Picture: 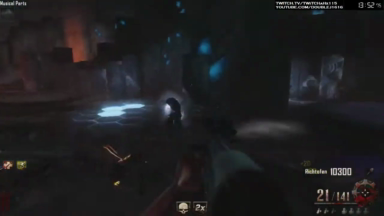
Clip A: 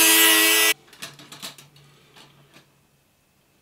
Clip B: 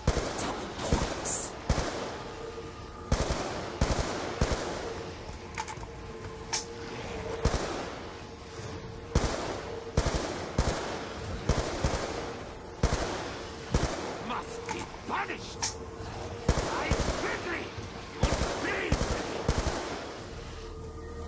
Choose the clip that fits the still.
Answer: B